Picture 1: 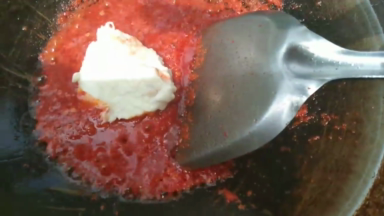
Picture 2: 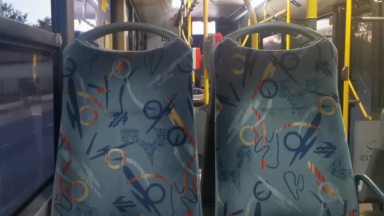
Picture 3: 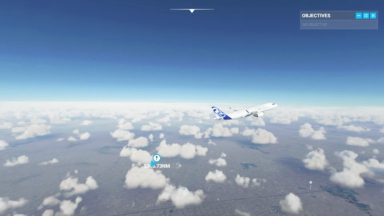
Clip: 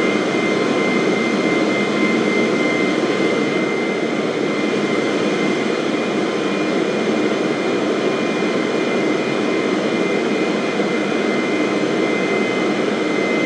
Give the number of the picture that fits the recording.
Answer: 3